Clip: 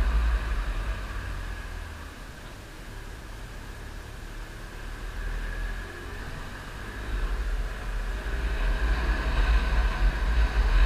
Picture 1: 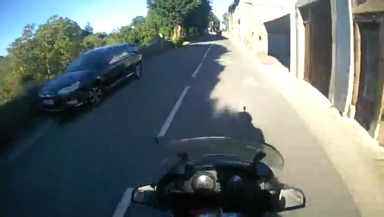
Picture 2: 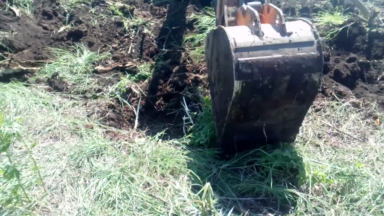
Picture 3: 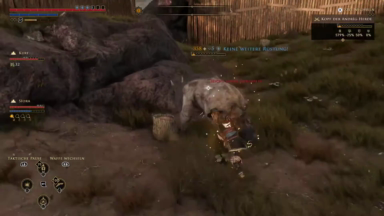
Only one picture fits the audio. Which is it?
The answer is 1